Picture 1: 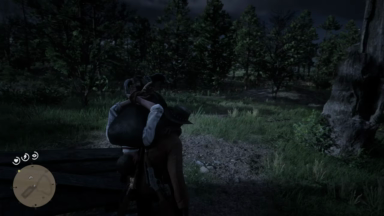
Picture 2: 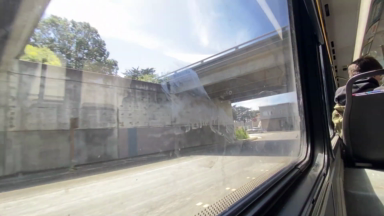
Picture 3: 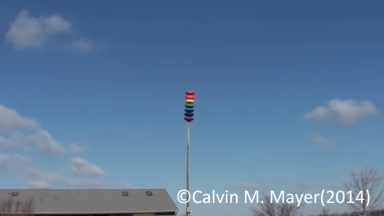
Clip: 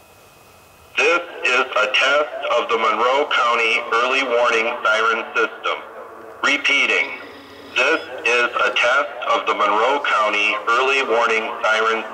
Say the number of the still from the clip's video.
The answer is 3